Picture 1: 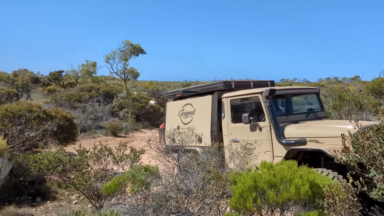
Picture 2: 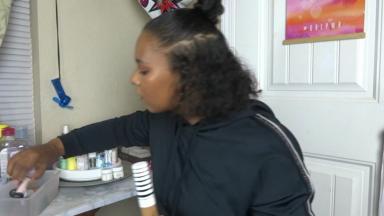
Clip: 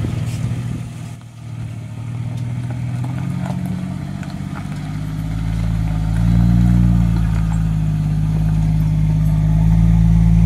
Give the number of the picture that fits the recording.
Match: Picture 1